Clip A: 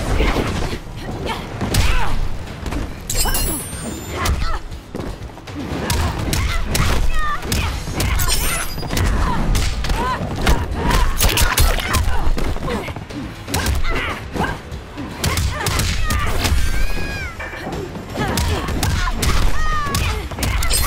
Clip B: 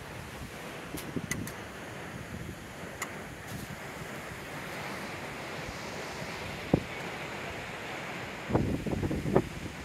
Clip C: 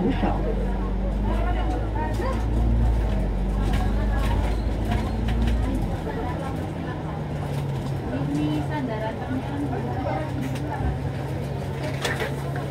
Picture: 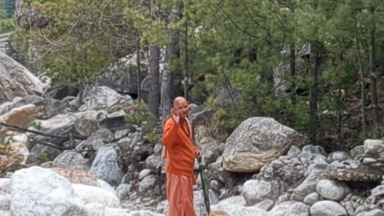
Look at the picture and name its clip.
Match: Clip B